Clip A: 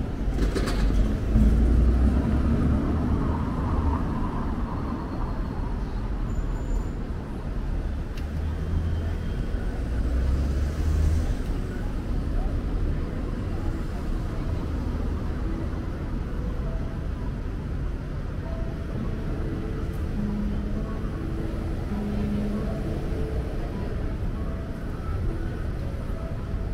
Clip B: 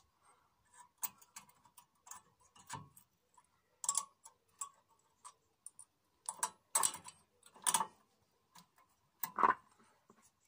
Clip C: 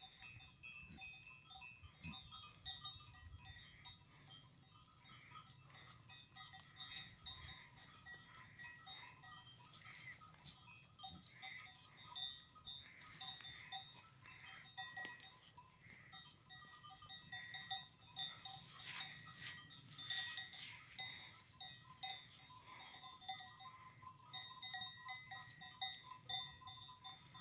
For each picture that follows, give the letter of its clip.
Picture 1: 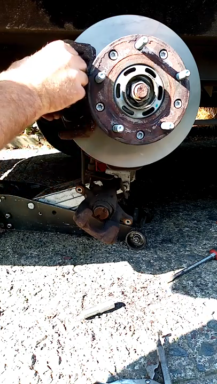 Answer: B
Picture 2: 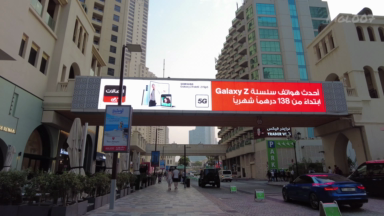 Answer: A